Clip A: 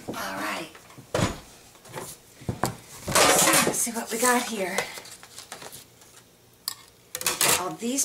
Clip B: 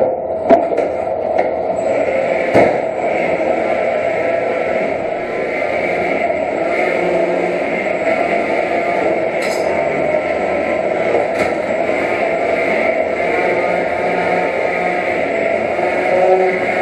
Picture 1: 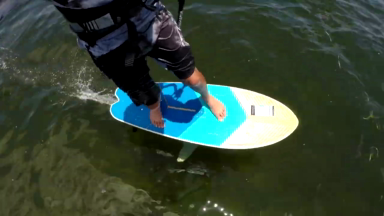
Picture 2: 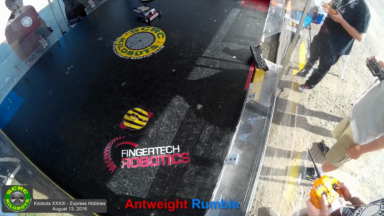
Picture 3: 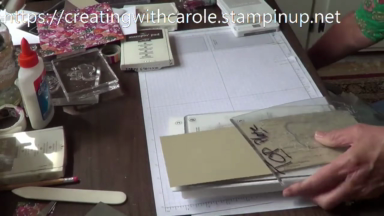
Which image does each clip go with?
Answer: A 3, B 2